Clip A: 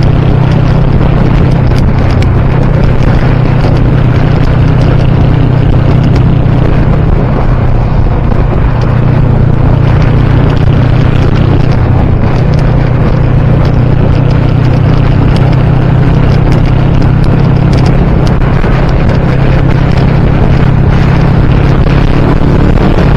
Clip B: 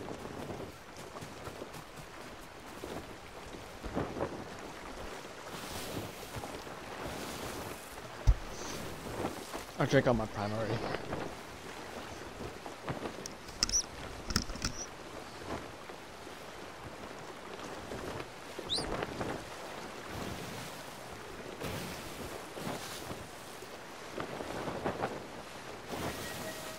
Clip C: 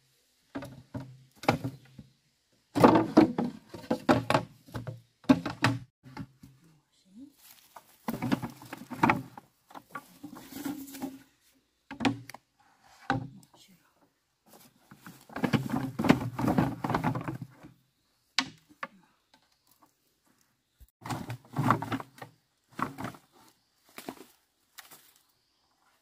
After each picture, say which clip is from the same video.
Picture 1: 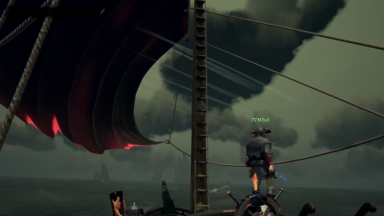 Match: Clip B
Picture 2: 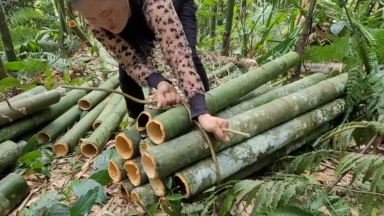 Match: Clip C